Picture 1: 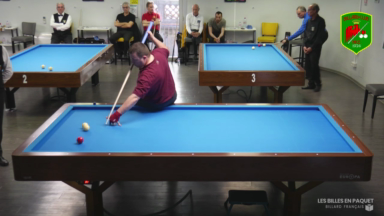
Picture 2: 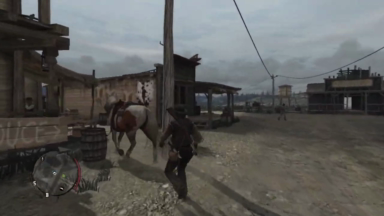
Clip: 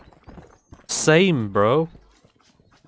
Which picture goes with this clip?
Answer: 2